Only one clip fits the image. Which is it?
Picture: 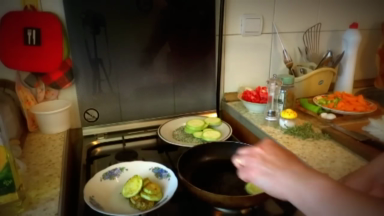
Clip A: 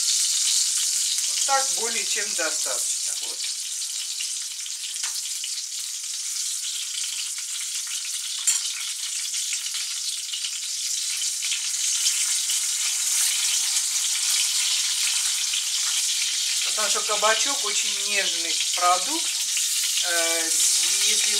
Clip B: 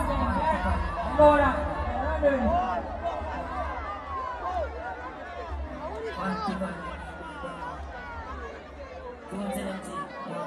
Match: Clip A